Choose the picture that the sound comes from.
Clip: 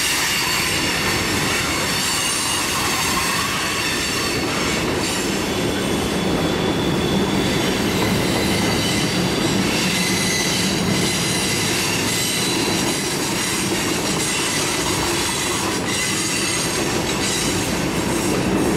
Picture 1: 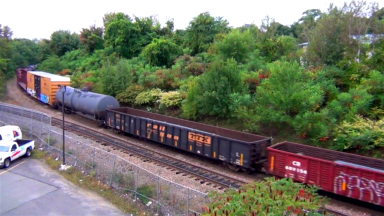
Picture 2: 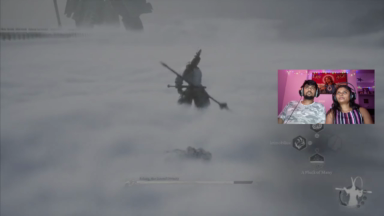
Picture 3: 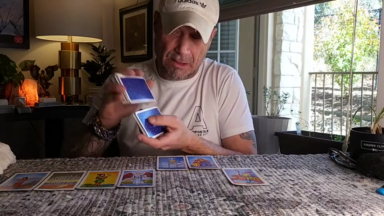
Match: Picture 1